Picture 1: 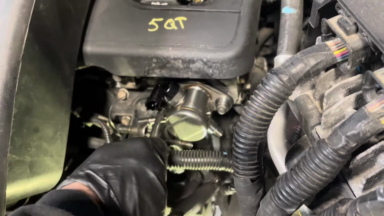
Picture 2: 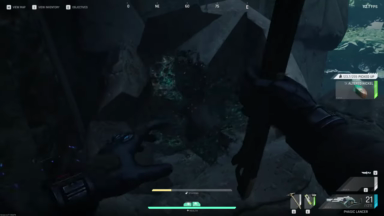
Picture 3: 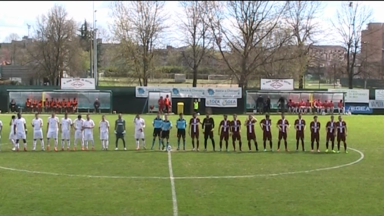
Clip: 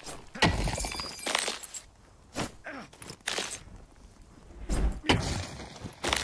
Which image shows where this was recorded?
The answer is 2